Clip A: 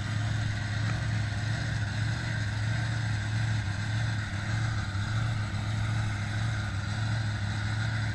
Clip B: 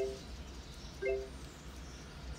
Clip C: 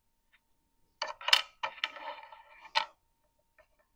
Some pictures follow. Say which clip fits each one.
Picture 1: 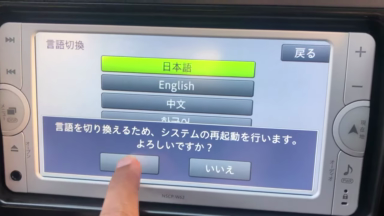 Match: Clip B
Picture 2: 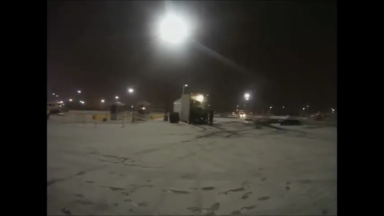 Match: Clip A